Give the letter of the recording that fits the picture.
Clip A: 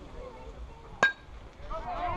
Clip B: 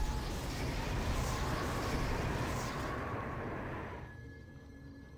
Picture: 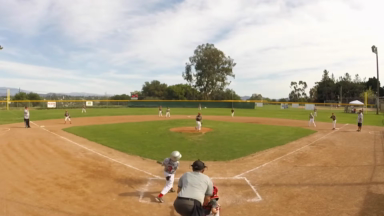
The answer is A